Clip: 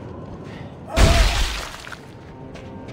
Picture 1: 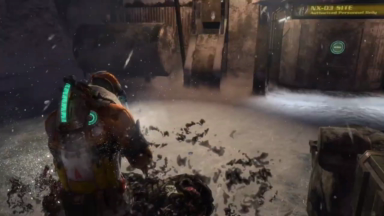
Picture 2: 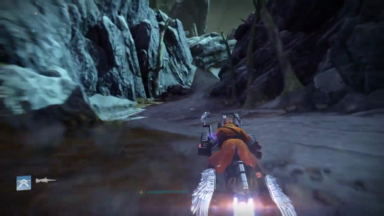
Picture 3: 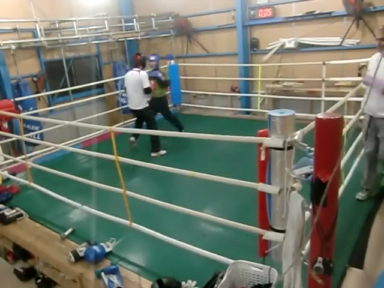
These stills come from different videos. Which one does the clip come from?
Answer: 1